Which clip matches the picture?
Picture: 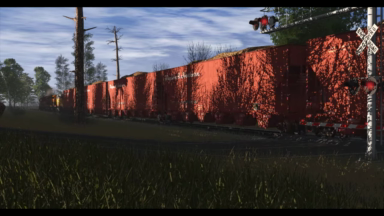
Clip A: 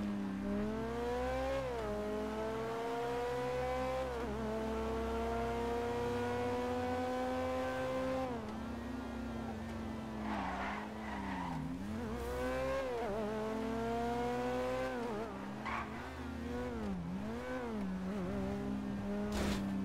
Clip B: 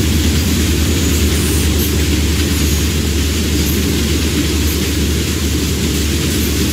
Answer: B